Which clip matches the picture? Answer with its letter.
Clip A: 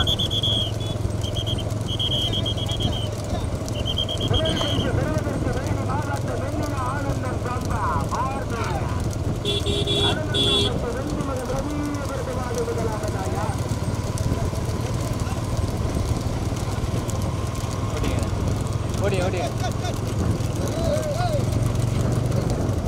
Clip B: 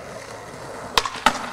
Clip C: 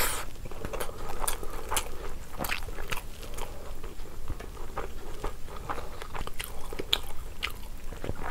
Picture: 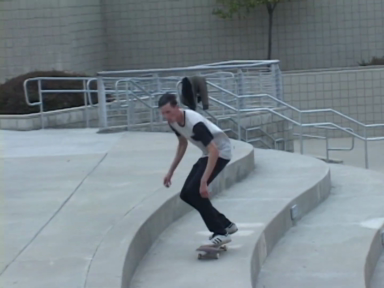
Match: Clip B